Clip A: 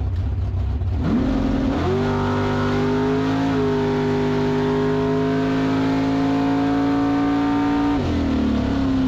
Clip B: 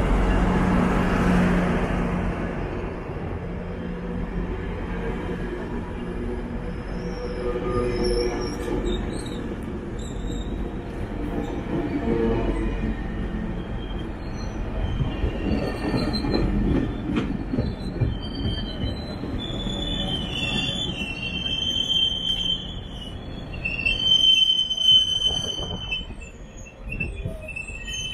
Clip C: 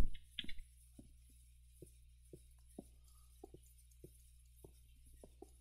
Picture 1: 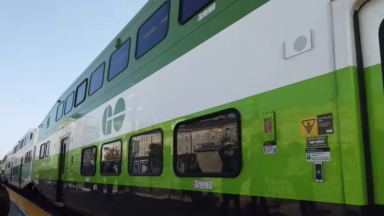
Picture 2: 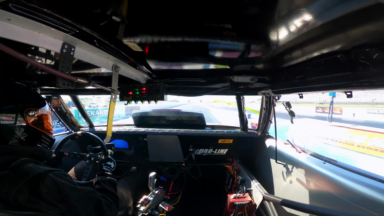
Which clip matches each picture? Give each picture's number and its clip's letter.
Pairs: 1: B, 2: A